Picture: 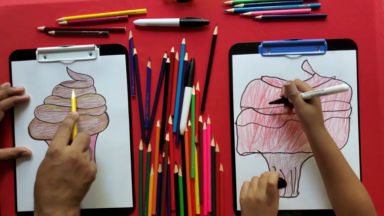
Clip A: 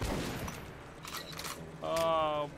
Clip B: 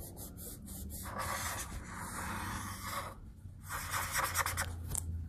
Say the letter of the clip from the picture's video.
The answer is B